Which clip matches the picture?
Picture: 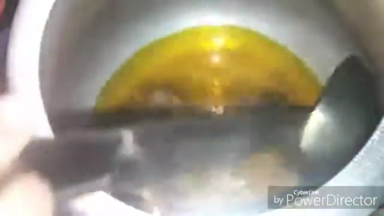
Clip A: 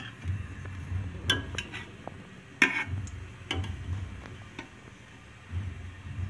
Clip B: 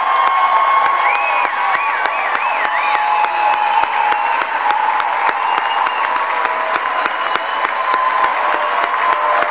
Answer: A